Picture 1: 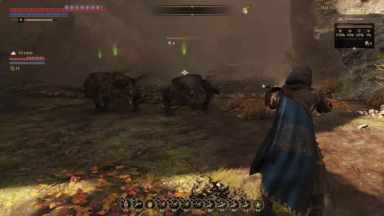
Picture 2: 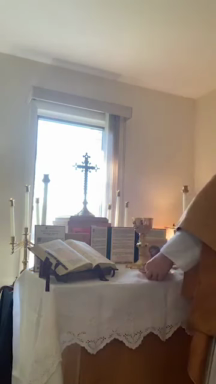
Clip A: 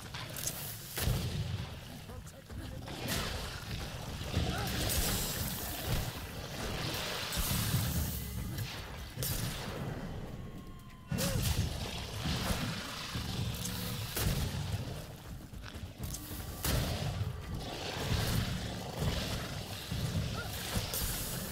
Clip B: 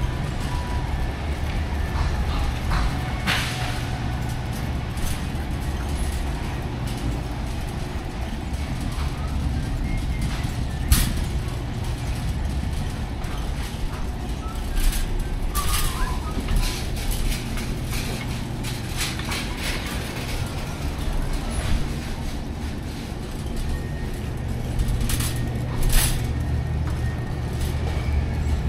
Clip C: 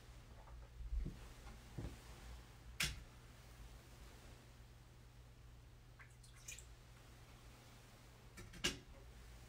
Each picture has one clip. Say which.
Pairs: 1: A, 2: C